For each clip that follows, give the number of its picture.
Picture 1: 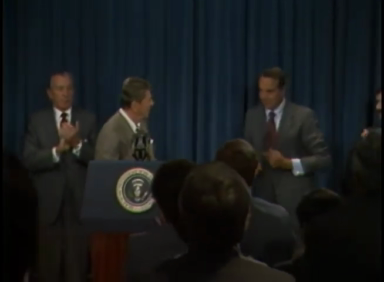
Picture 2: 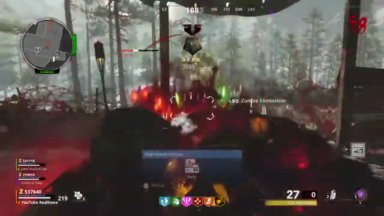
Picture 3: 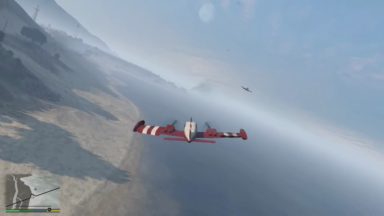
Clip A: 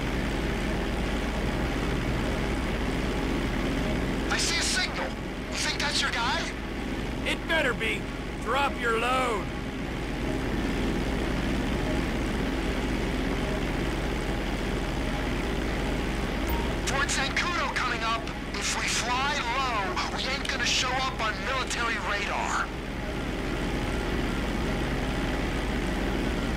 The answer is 3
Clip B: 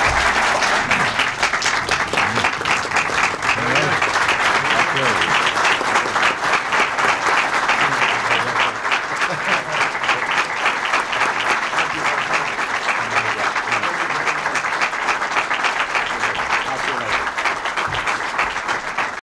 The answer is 1